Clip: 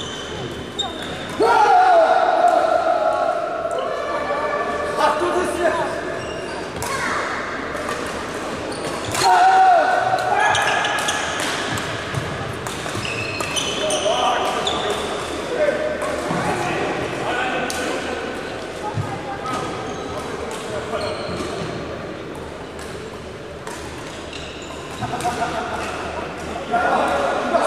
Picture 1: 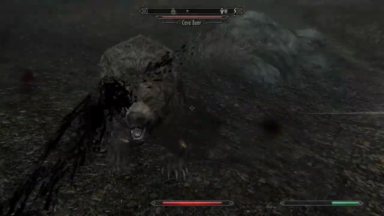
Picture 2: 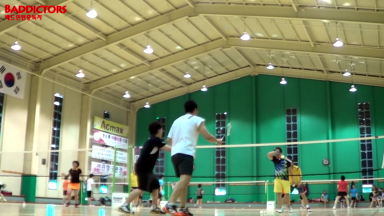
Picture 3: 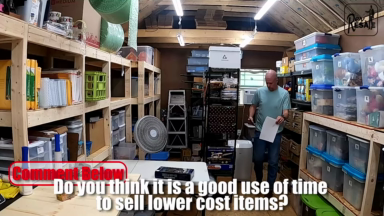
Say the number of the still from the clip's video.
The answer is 2